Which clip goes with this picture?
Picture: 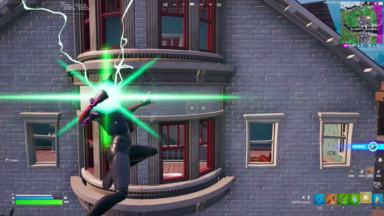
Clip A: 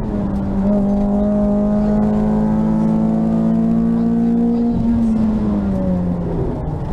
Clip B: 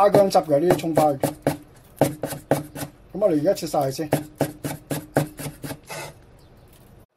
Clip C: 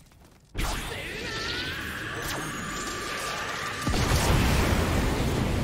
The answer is C